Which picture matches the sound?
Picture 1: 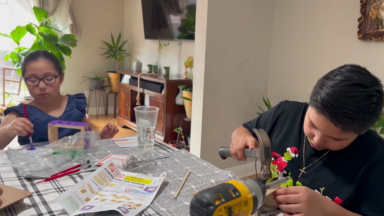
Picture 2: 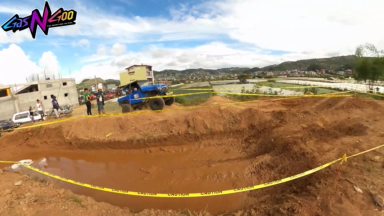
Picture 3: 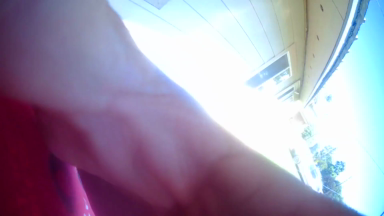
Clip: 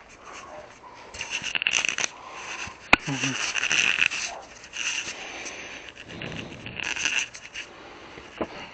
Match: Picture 3